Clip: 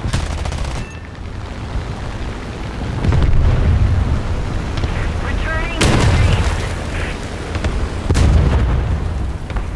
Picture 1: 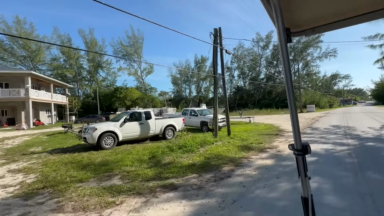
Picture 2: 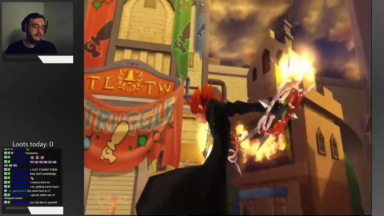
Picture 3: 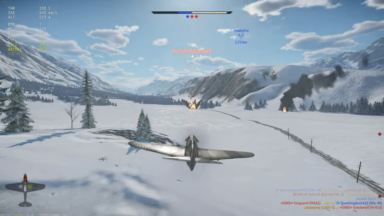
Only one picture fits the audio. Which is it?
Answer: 3